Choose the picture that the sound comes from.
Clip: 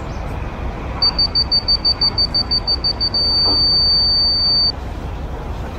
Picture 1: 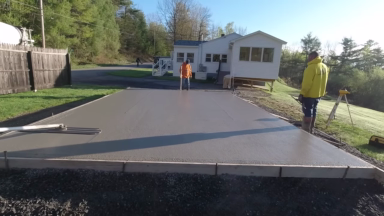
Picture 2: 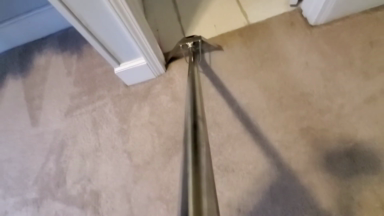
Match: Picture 1